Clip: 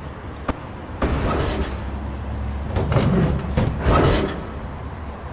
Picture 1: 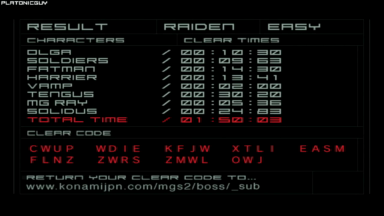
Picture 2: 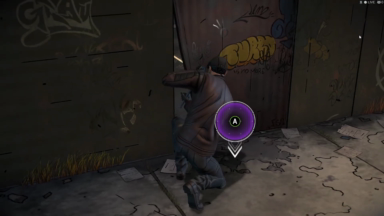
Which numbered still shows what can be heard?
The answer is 2